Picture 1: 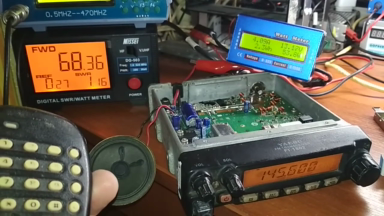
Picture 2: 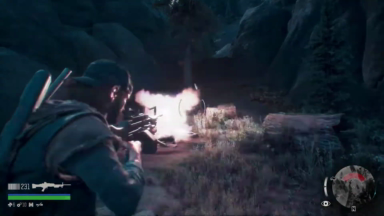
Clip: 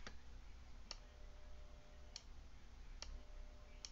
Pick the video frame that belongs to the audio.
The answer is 1